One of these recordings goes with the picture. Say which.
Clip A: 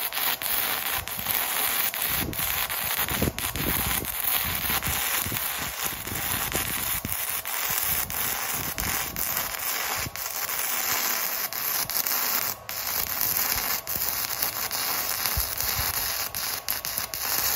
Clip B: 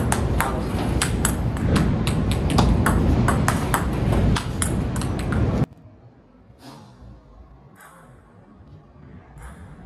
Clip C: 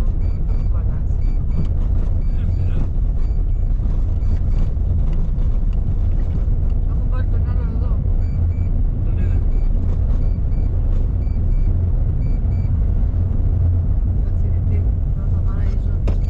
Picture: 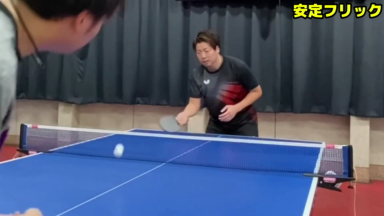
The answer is B